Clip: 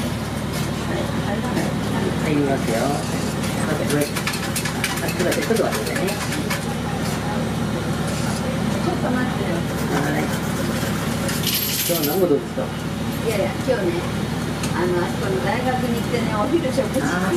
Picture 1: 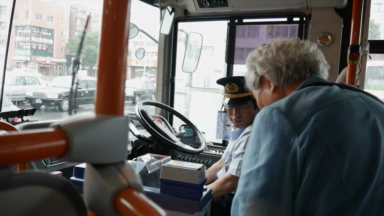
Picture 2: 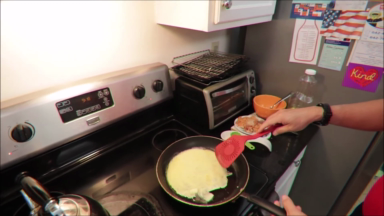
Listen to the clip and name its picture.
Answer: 1